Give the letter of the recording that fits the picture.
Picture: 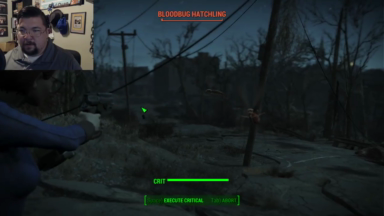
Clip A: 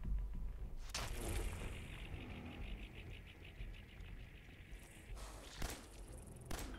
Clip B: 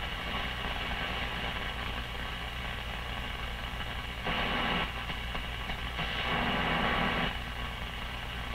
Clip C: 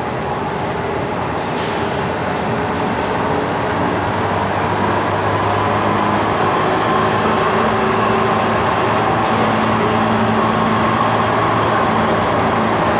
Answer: A